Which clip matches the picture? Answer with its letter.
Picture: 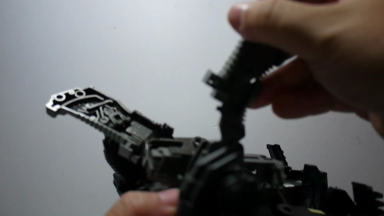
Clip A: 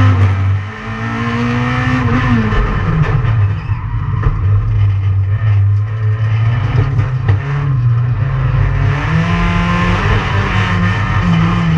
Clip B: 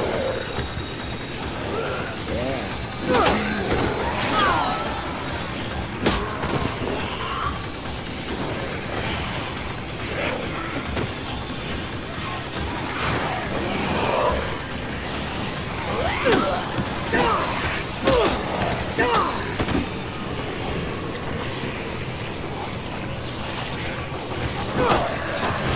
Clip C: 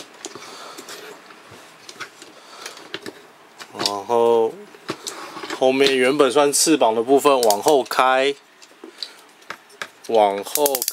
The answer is C